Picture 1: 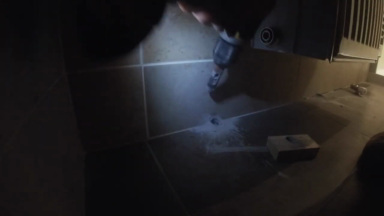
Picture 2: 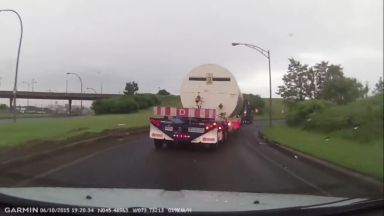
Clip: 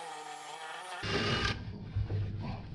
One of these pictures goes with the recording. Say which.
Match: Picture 1